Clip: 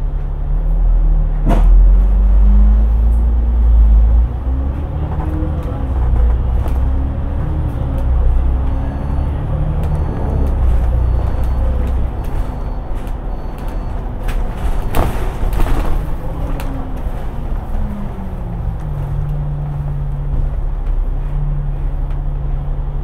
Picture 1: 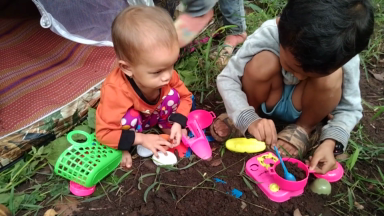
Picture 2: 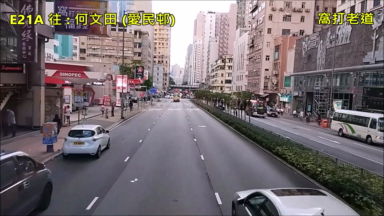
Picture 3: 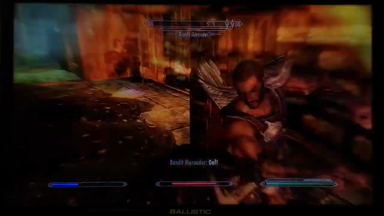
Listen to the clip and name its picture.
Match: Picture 2